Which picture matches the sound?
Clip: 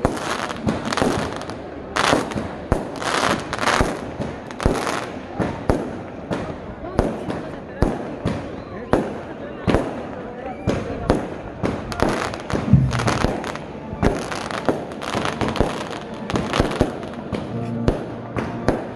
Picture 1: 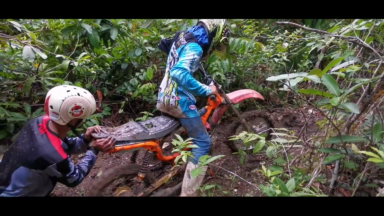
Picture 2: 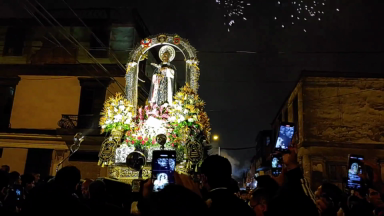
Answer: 2